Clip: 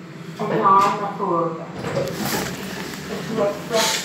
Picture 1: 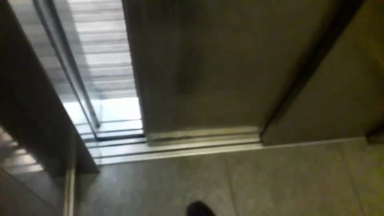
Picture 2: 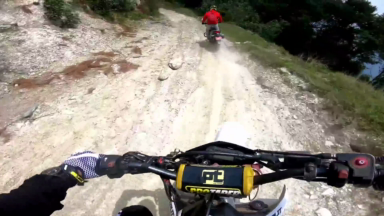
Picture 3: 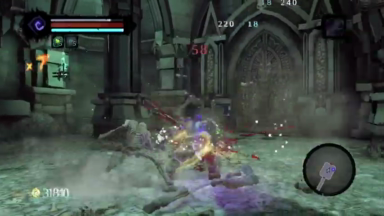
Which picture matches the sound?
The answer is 1